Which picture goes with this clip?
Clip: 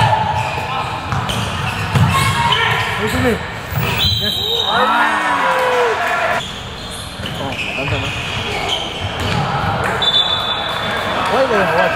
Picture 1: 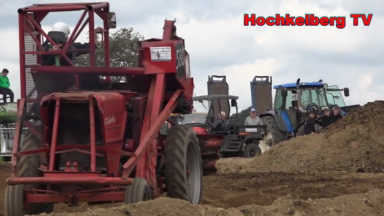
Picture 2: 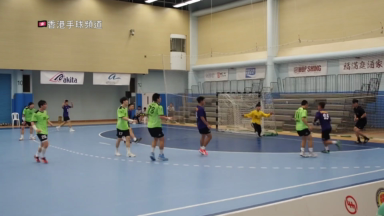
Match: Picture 2